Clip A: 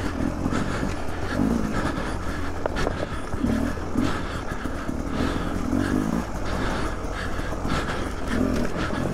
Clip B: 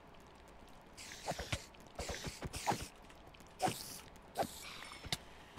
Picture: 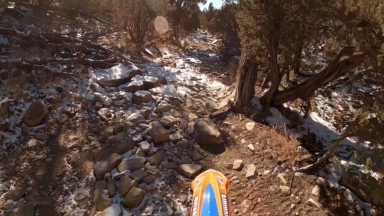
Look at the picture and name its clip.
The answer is A